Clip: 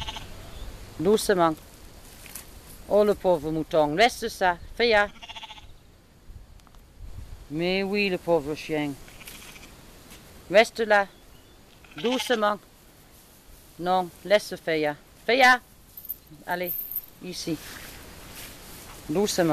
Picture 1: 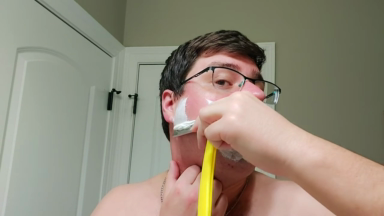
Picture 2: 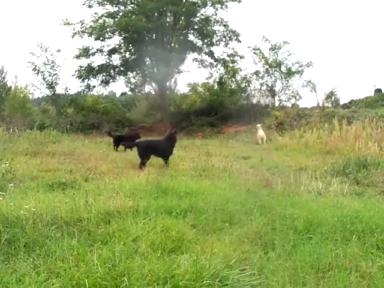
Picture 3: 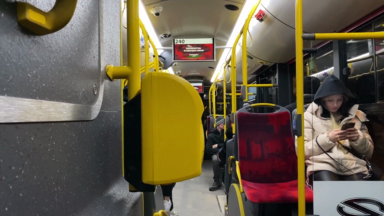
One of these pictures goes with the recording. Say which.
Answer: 2